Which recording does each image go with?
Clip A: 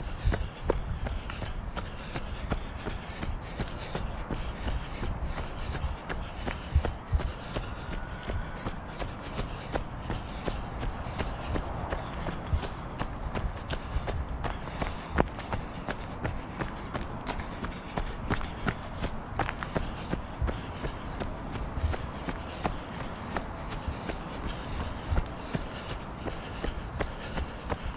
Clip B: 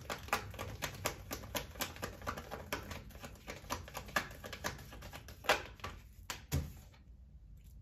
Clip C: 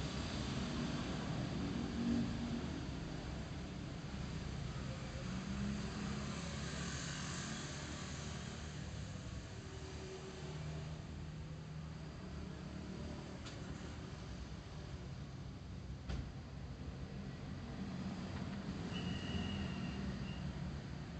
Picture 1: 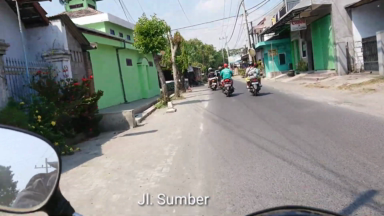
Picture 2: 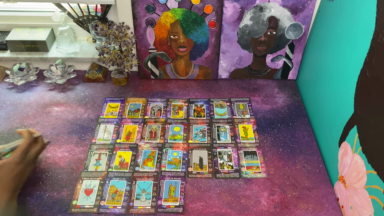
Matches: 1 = C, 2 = B